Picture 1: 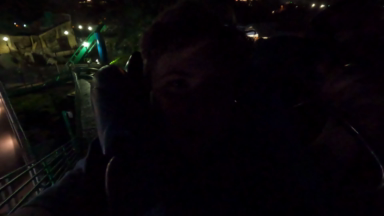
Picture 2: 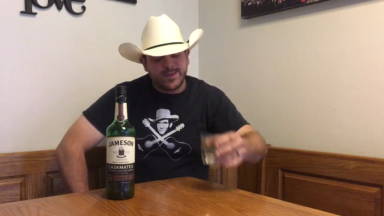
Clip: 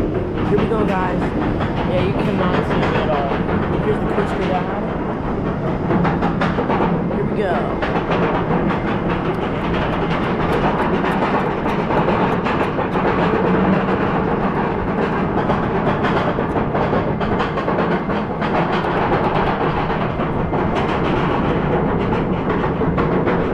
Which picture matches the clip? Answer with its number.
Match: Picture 1